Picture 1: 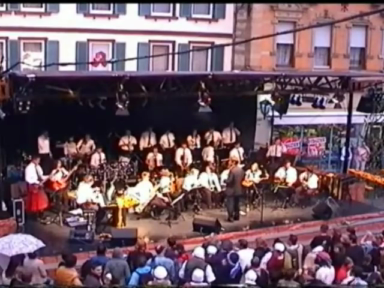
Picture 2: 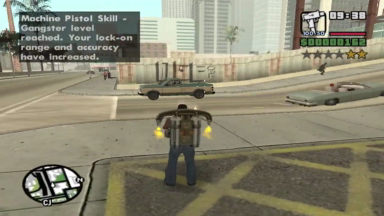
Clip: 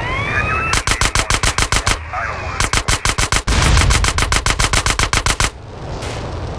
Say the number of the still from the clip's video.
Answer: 2